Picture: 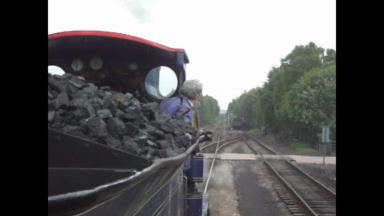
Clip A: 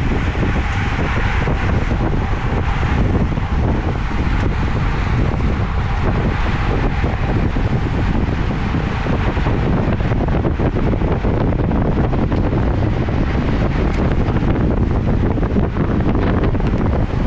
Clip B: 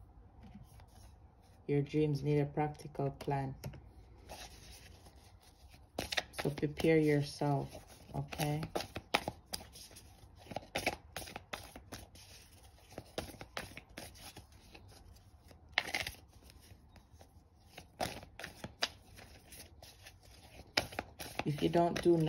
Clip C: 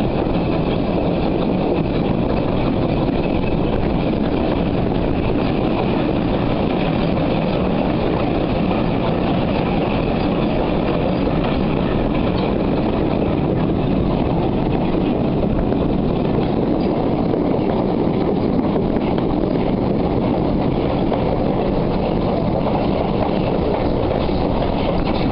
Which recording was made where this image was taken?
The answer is C